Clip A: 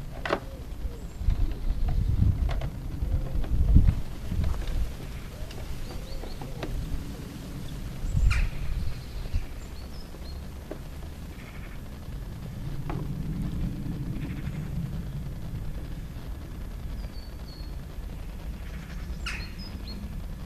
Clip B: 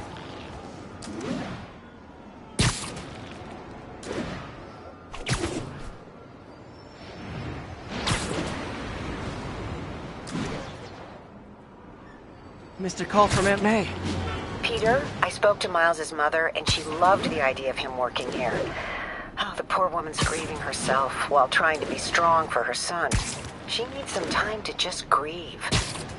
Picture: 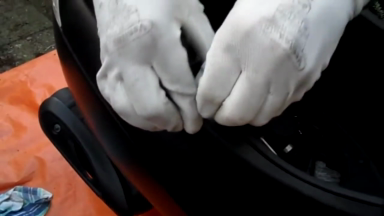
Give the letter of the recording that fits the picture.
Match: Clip A